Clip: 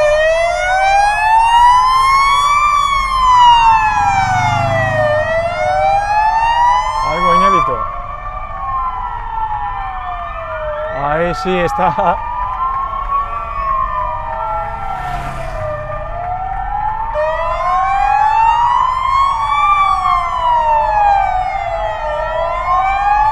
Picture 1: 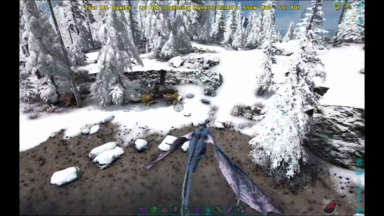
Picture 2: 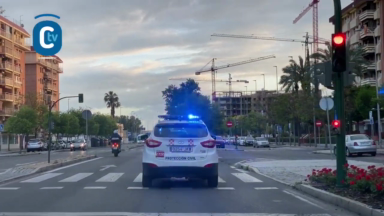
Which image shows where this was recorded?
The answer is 2